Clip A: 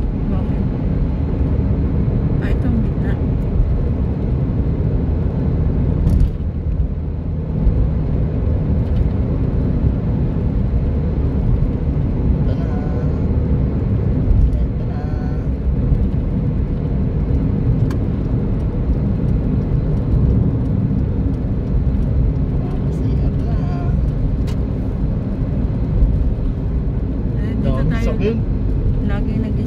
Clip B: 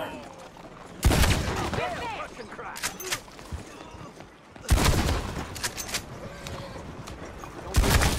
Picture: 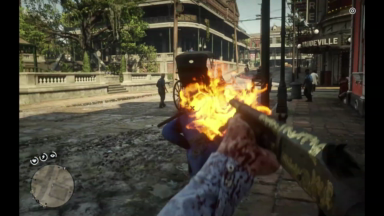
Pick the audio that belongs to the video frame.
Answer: B